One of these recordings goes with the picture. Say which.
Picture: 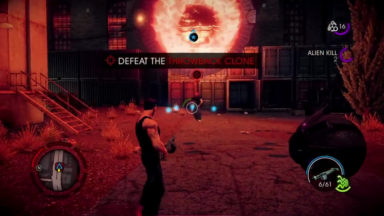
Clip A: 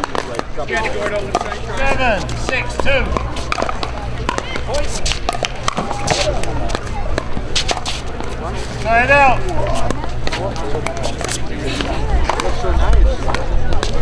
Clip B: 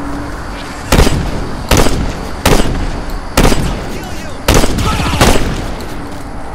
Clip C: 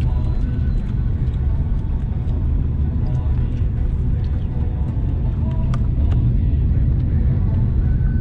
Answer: B